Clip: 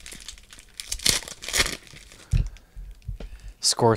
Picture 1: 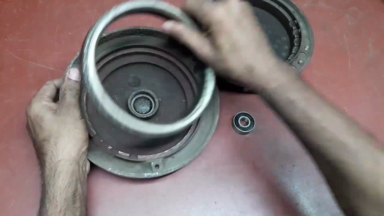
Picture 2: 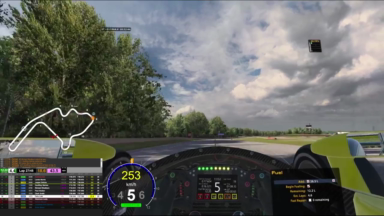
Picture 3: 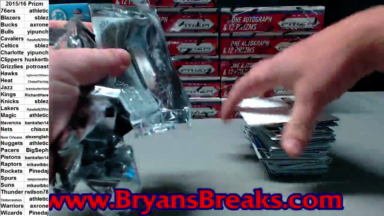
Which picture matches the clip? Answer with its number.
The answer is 3